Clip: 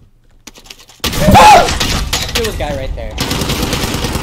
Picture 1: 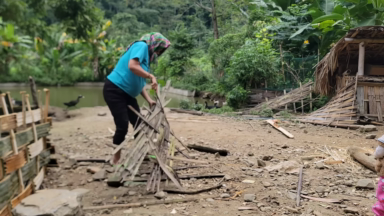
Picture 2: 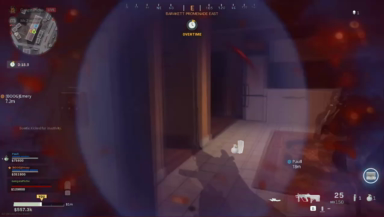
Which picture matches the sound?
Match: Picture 2